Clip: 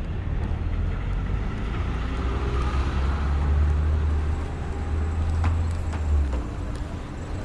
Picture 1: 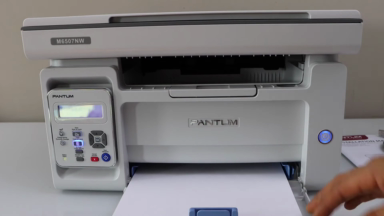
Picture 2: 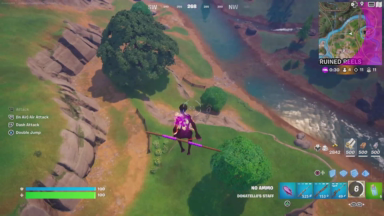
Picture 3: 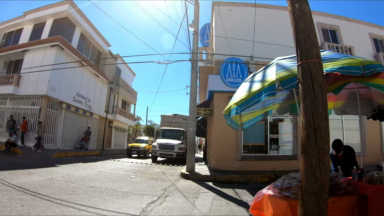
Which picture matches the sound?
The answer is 3